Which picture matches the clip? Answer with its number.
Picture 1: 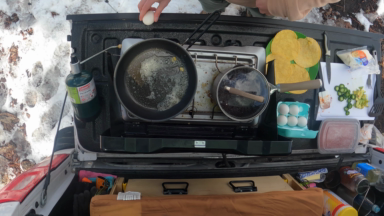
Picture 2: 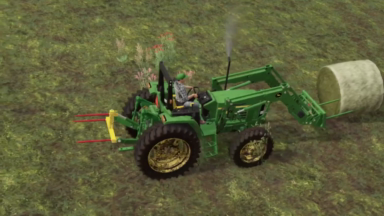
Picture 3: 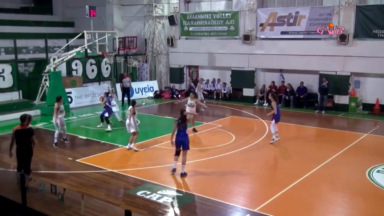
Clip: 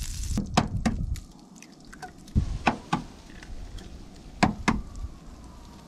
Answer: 1